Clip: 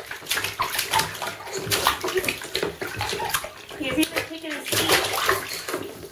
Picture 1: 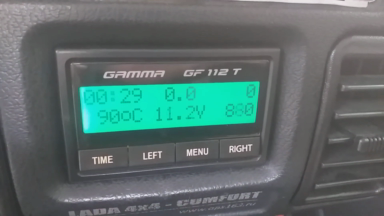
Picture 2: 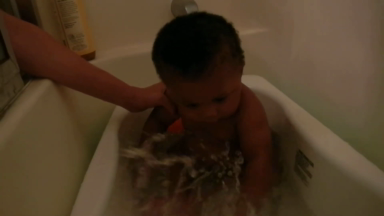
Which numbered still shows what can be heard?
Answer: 2